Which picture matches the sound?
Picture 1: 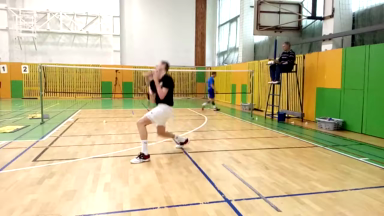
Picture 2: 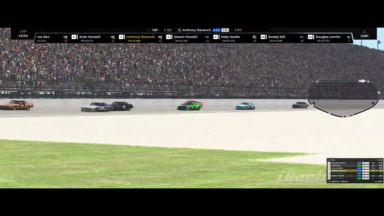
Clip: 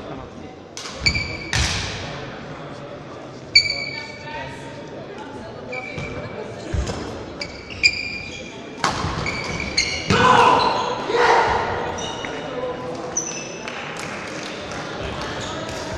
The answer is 1